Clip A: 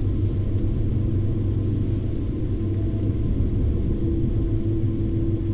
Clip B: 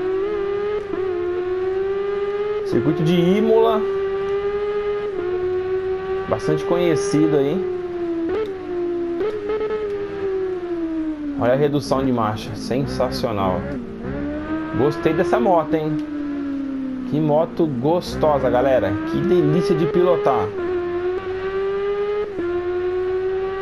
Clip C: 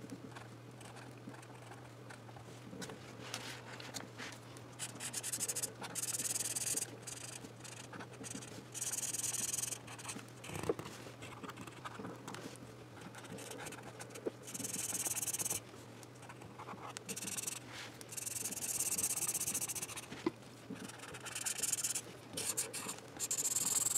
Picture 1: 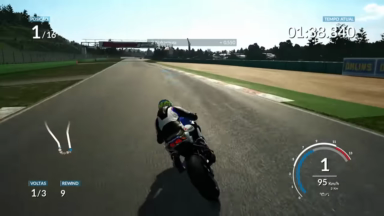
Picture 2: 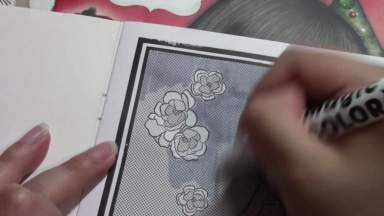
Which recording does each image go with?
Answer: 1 B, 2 C